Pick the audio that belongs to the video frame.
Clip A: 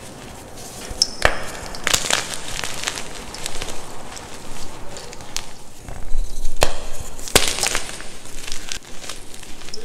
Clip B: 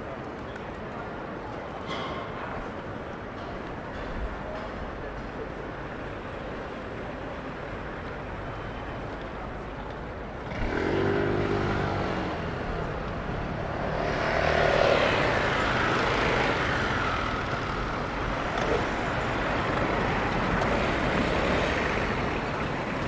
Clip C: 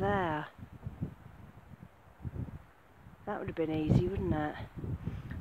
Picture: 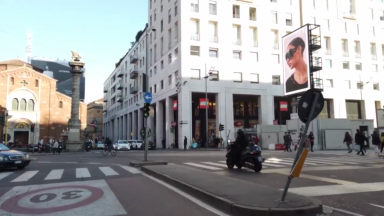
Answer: B